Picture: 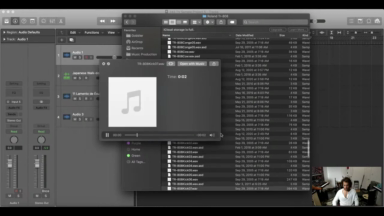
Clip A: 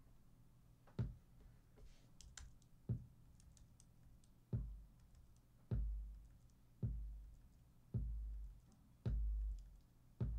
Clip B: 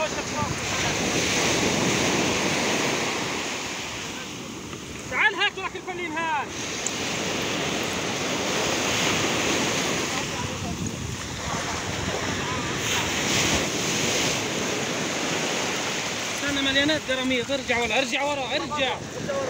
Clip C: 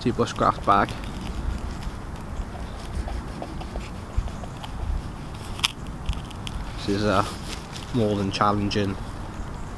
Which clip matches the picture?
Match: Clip A